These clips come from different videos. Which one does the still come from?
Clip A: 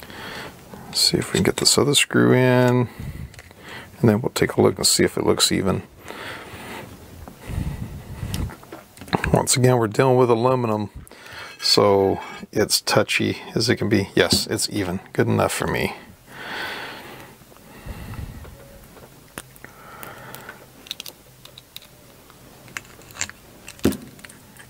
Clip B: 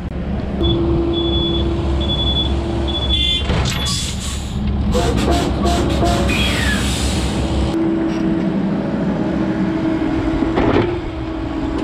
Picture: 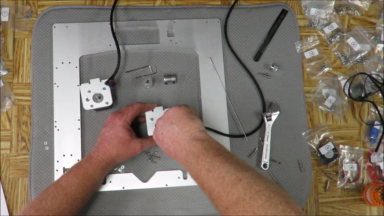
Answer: A